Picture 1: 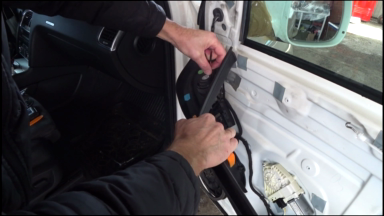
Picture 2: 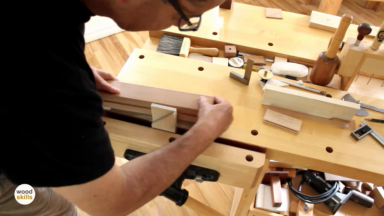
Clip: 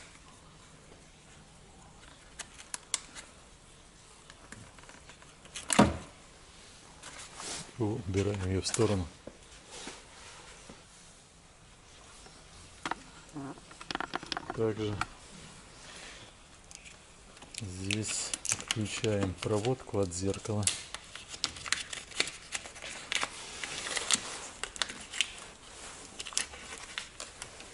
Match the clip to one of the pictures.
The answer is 1